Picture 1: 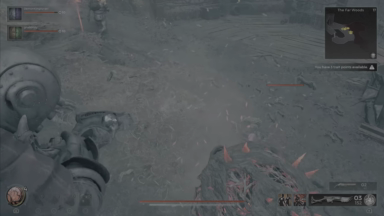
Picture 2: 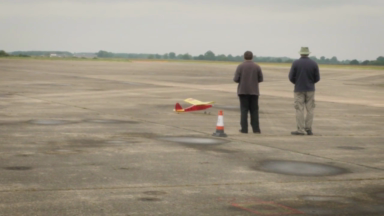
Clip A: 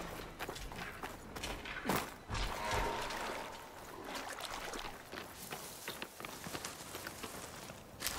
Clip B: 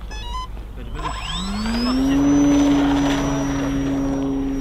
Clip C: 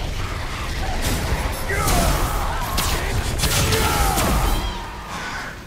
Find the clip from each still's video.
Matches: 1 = C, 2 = B